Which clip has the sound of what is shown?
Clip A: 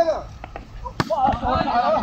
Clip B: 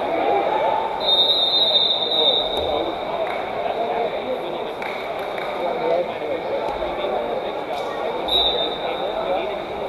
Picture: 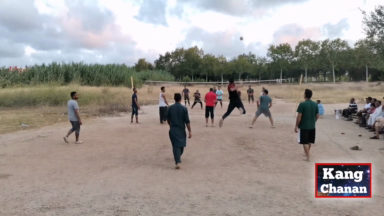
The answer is A